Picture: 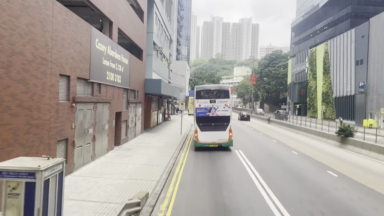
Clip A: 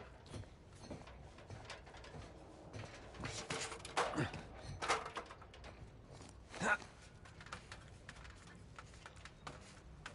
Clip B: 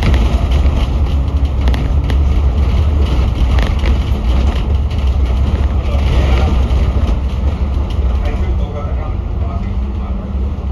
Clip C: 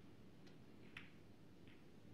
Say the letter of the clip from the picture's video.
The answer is B